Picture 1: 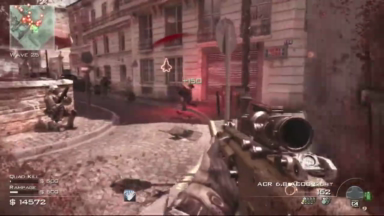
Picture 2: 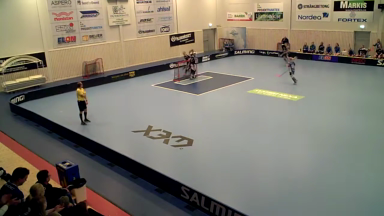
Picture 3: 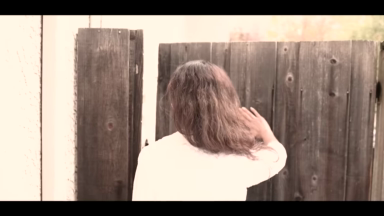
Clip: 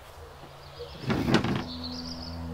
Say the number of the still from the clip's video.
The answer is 3